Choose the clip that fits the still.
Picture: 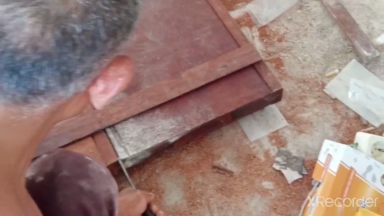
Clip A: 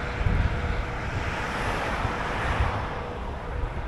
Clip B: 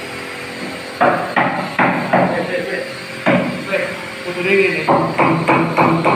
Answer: B